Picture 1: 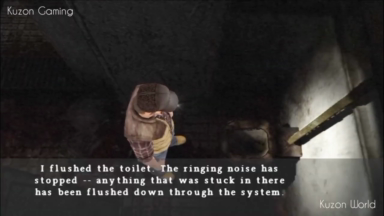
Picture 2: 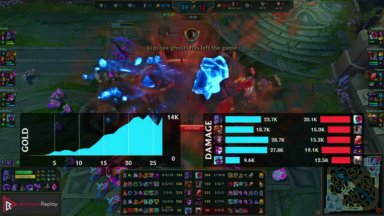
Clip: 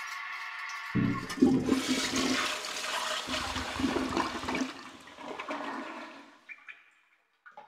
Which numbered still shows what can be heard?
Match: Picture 1